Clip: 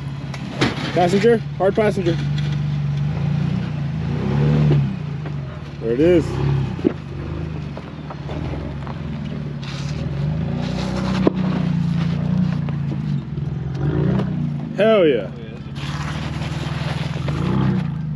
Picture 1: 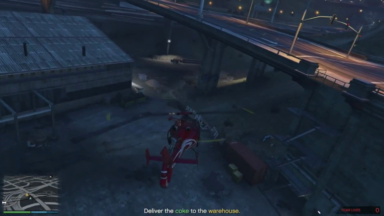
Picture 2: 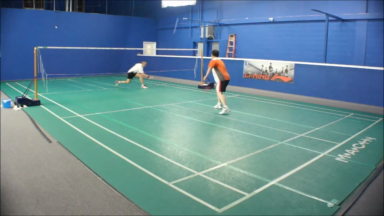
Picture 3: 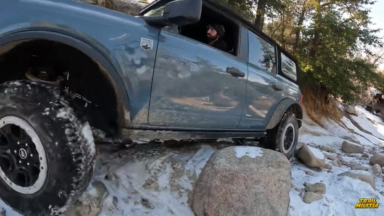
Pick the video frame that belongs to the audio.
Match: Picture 3